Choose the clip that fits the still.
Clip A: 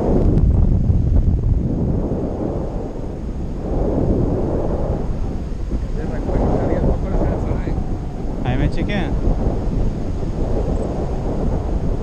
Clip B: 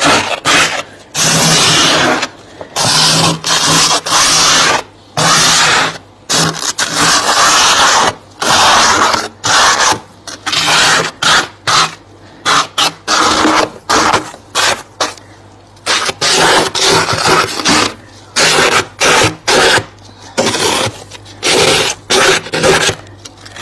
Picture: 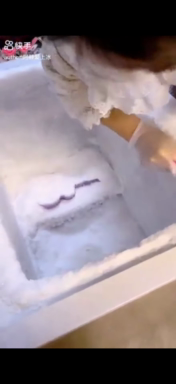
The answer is B